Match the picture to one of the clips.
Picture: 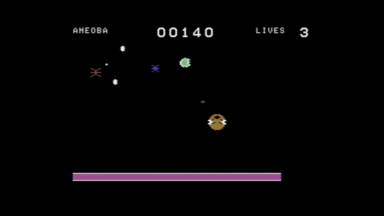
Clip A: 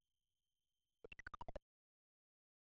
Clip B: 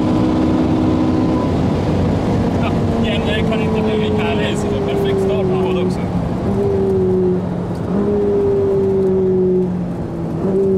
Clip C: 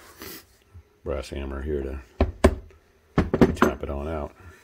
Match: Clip A